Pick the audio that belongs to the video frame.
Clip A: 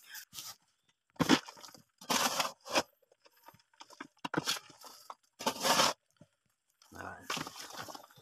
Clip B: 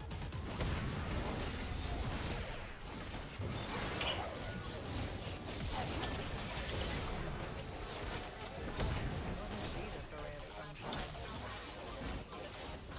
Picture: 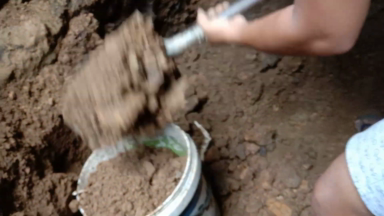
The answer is A